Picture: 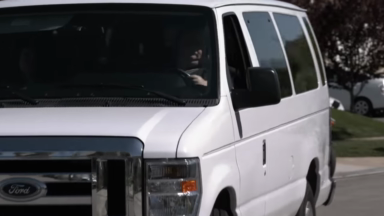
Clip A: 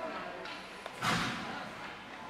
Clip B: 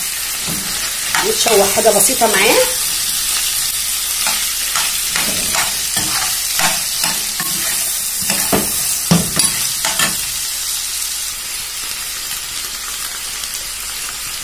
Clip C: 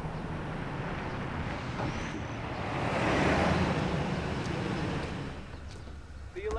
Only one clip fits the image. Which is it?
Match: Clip C